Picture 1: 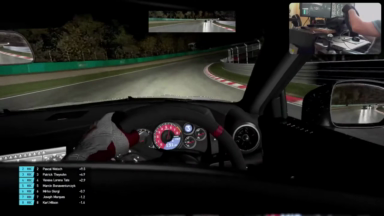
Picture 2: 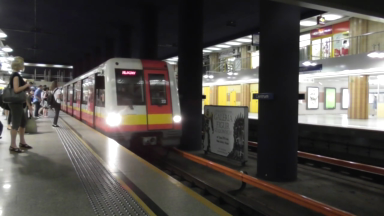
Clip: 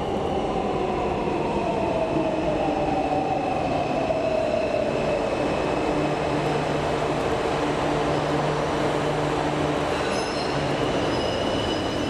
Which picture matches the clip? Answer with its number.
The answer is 2